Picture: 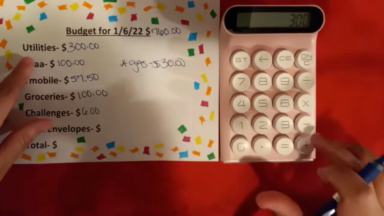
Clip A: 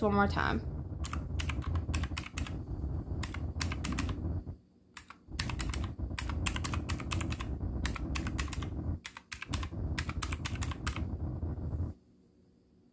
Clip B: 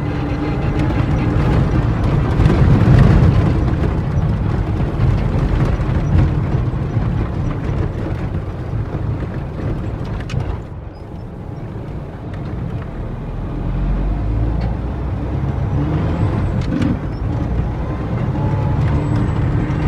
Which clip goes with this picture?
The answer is A